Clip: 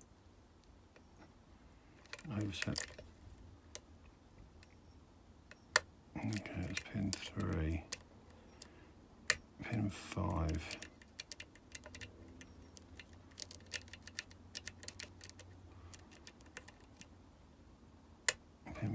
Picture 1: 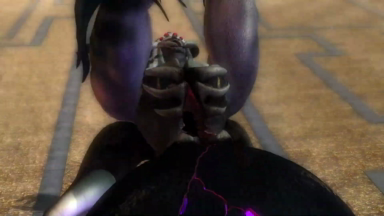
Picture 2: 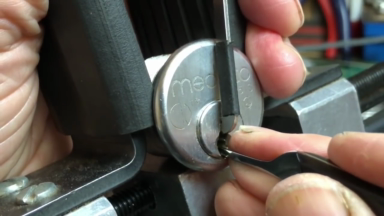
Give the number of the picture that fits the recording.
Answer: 2